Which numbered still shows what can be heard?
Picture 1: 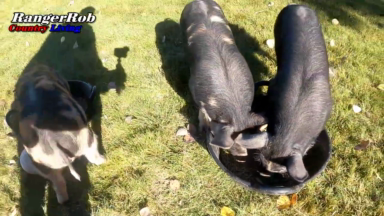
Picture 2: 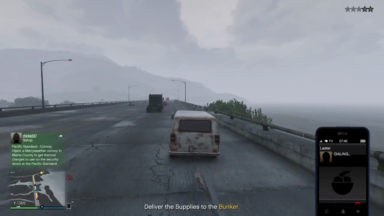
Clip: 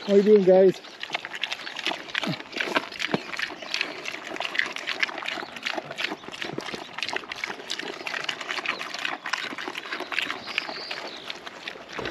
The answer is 1